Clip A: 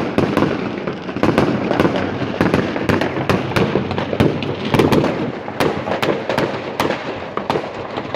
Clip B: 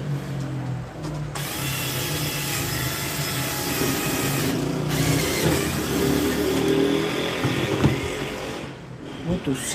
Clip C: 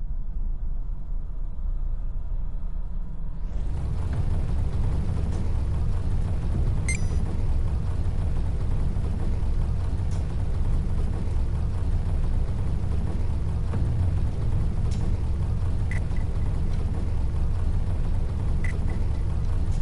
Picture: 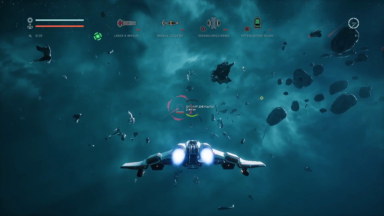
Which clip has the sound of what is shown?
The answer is C